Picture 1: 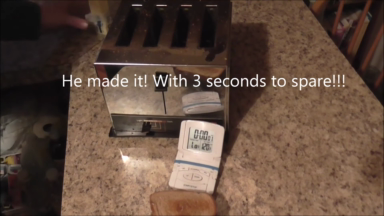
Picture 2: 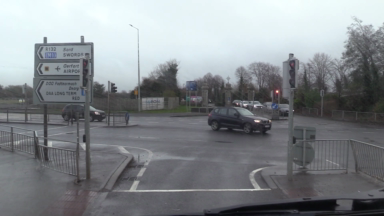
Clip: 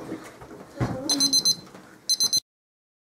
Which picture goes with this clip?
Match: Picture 1